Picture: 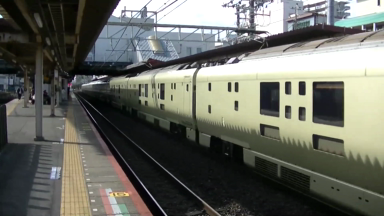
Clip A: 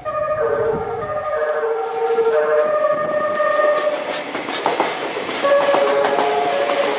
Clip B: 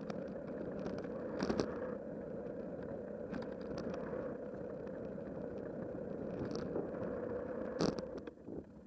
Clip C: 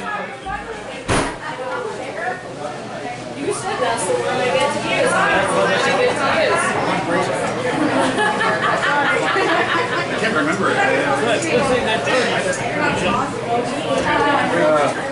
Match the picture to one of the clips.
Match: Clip A